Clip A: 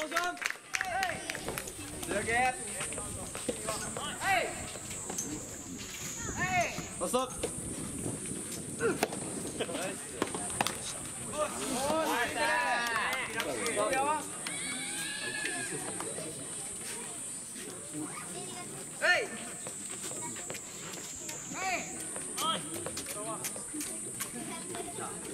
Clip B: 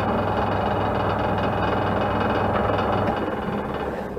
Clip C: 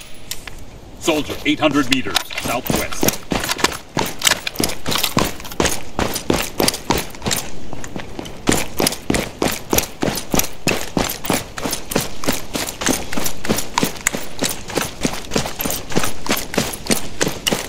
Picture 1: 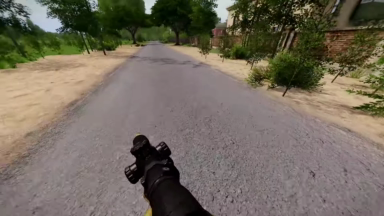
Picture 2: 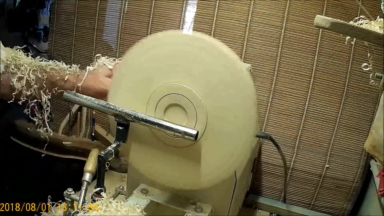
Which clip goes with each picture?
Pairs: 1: C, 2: B